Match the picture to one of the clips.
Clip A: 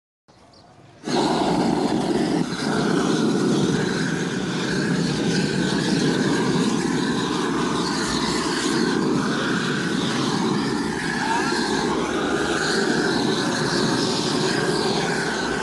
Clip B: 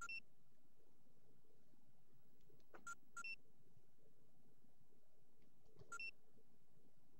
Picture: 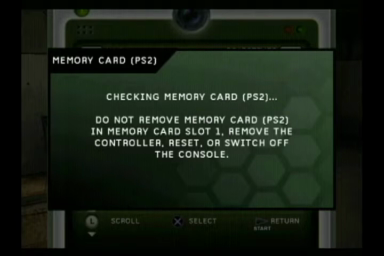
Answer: B